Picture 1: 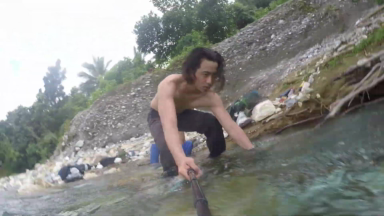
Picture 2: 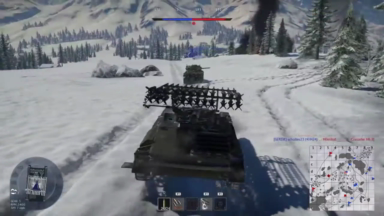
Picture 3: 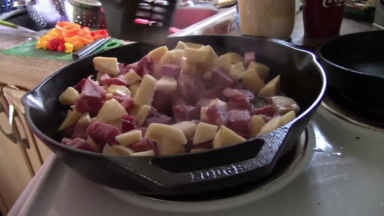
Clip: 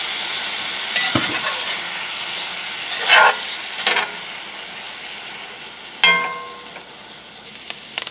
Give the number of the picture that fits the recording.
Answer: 3